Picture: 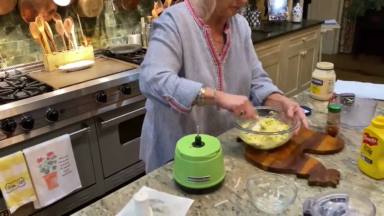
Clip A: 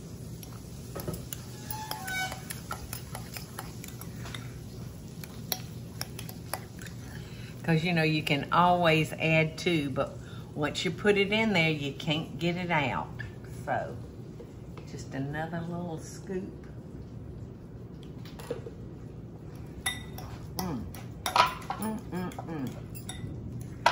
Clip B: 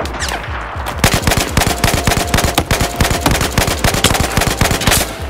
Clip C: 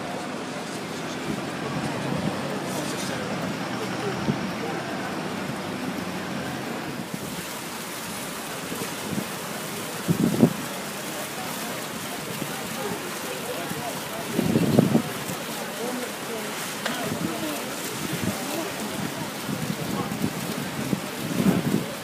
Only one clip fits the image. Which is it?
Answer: A